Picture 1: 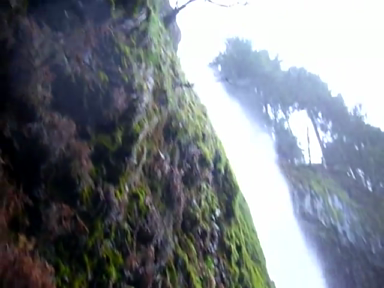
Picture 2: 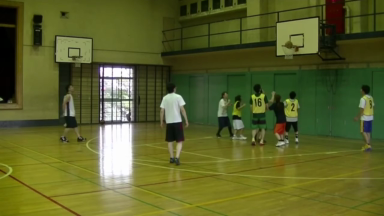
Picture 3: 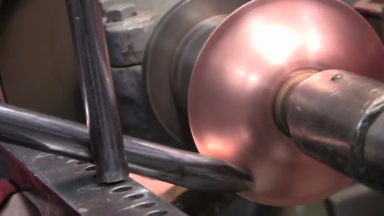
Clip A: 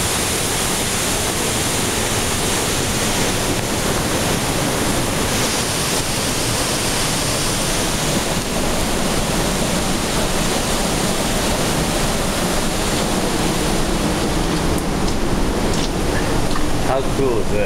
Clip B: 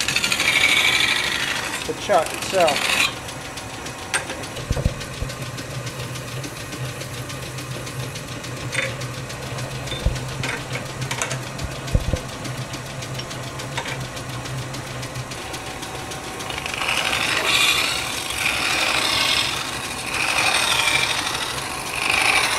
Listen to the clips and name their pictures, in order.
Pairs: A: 1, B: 3